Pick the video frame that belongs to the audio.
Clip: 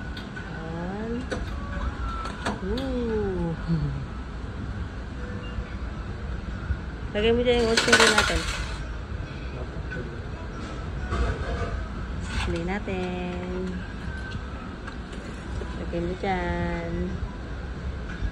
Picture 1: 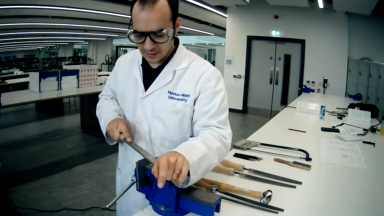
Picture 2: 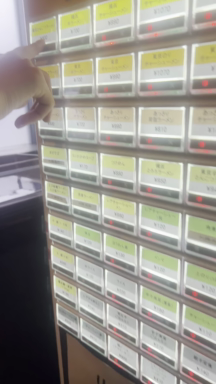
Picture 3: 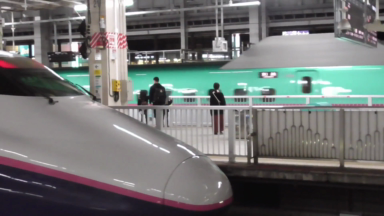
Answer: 2